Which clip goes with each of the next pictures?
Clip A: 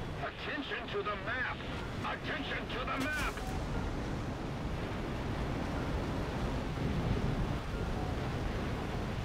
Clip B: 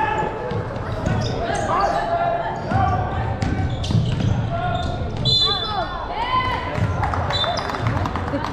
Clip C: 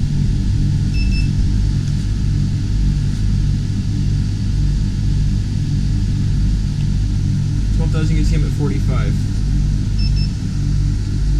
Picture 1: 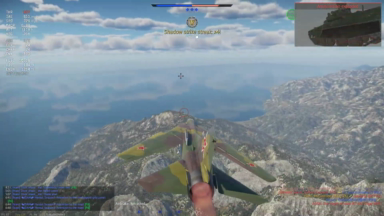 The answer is A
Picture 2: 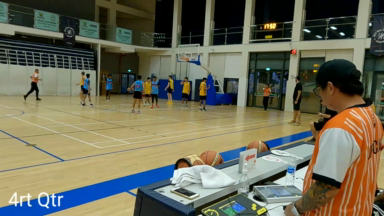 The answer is B